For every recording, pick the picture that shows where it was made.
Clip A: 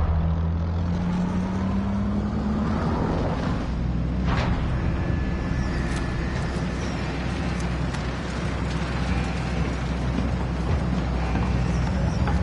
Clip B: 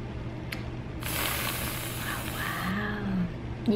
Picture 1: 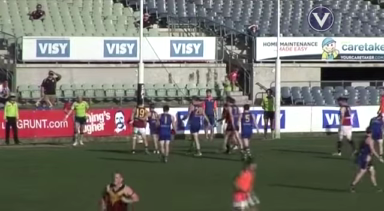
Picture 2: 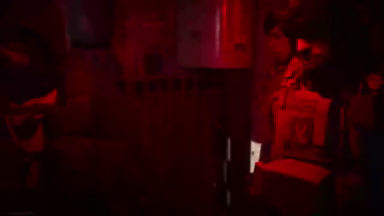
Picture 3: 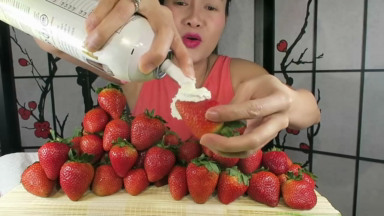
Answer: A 2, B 3